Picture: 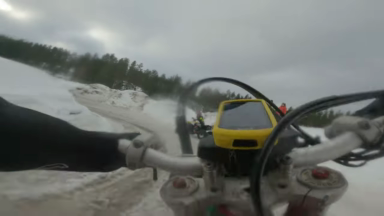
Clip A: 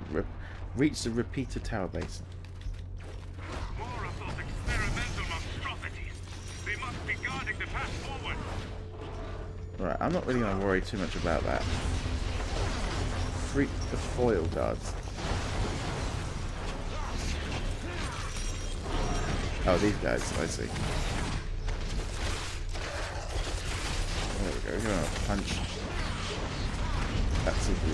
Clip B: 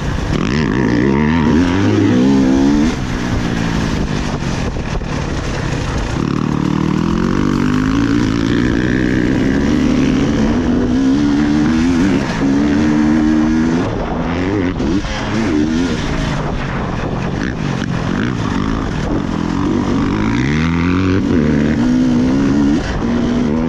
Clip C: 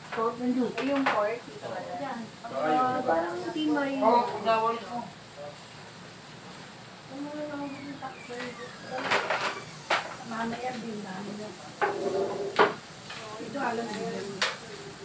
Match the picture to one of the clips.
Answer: B